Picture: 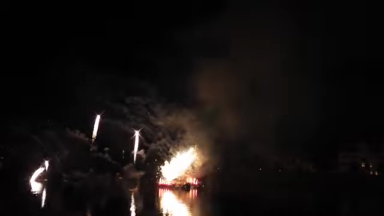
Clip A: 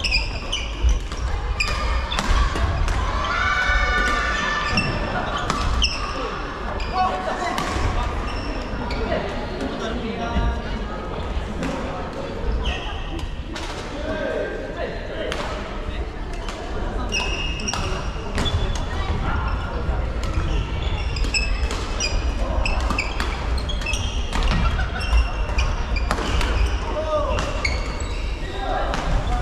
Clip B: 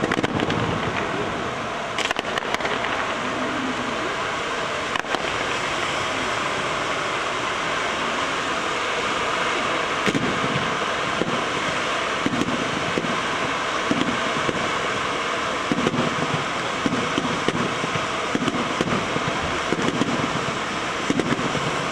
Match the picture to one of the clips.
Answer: B